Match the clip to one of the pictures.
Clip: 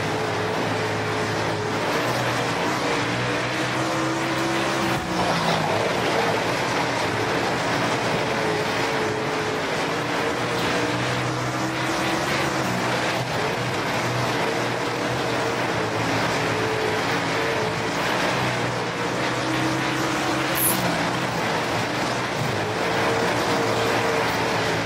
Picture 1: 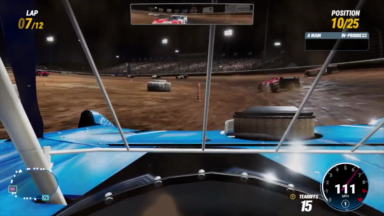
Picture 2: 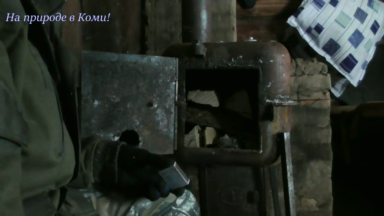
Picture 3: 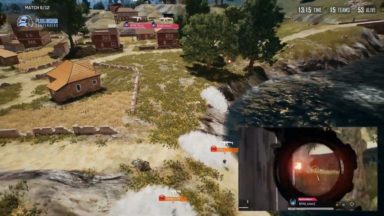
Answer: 1